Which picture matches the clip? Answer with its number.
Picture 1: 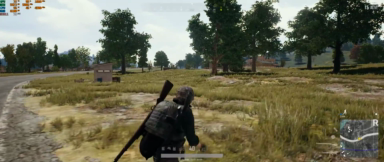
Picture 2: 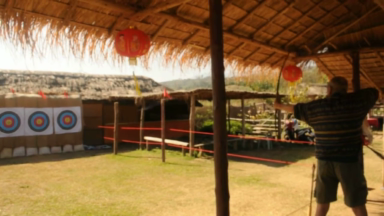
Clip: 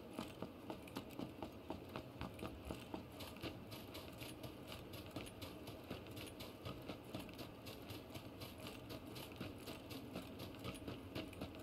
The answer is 1